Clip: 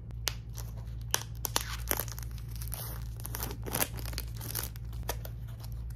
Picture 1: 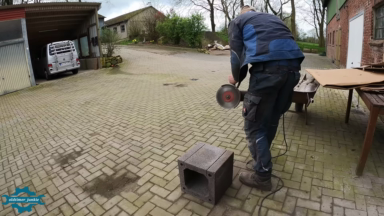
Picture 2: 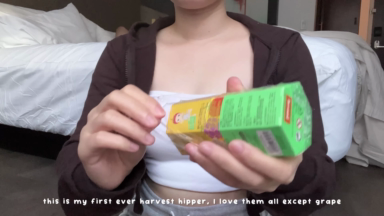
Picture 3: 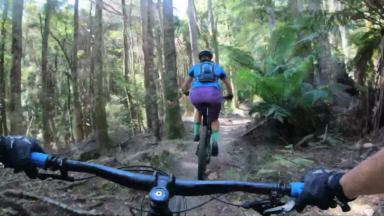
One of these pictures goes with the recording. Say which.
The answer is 2